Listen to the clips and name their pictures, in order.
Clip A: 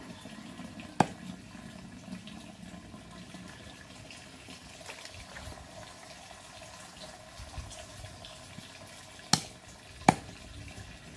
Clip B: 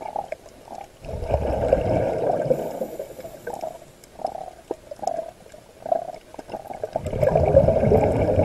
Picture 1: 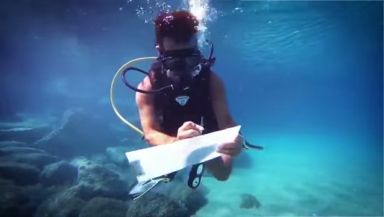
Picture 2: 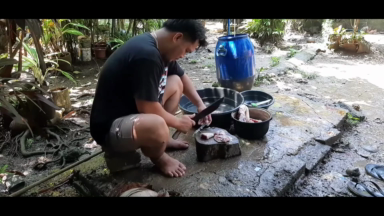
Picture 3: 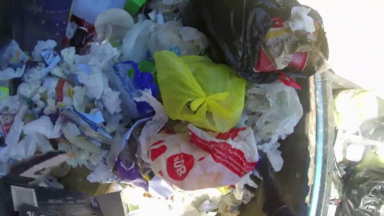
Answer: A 2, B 1